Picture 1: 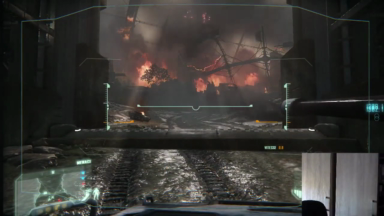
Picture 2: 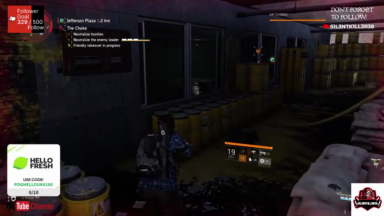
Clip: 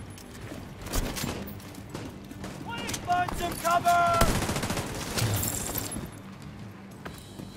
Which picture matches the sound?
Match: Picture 2